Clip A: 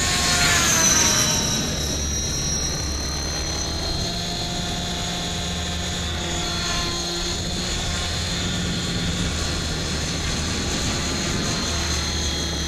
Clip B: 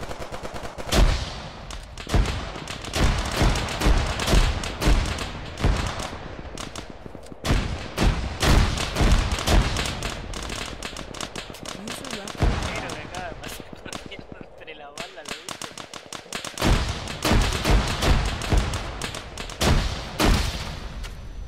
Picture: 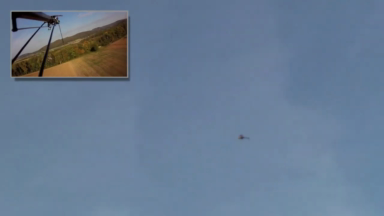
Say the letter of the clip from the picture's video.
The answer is A